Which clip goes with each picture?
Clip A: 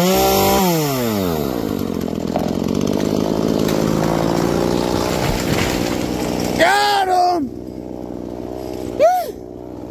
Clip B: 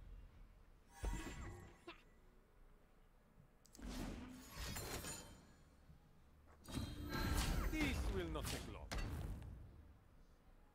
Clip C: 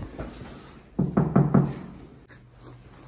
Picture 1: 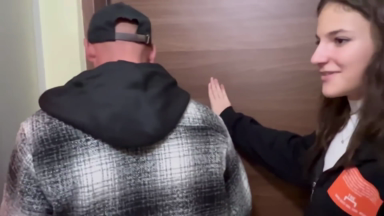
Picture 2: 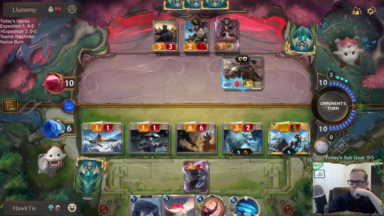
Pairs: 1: C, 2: B